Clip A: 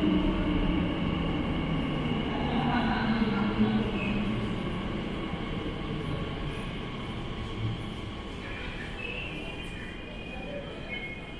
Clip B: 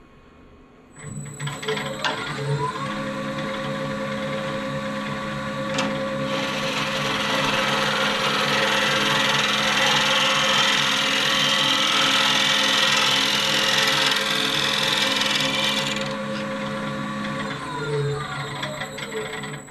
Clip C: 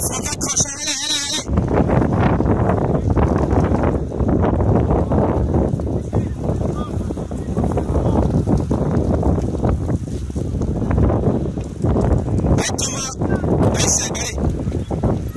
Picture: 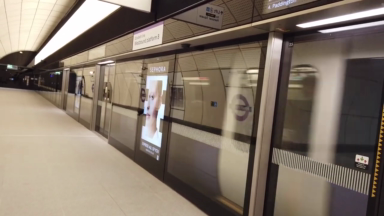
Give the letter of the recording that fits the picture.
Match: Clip A